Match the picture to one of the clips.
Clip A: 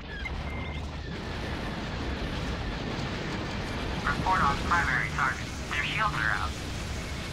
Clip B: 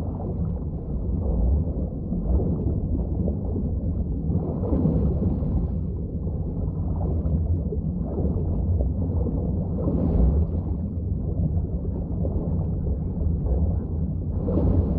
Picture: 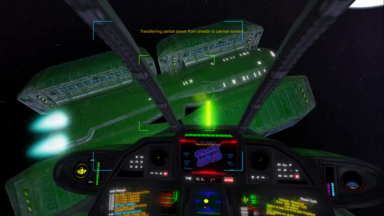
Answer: A